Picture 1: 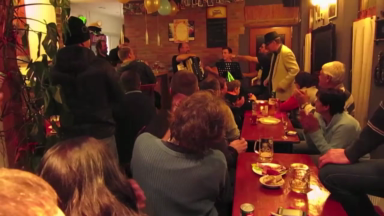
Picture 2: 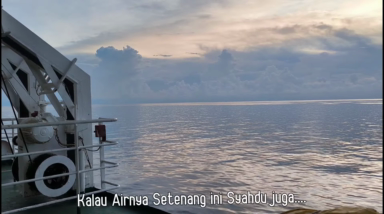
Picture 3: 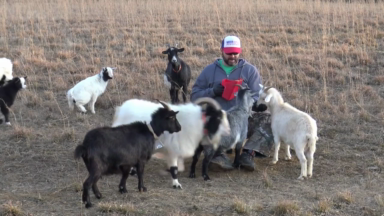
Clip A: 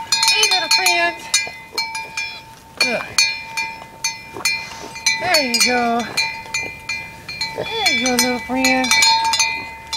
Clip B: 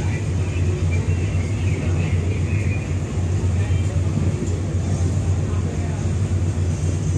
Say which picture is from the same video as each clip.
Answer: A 3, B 2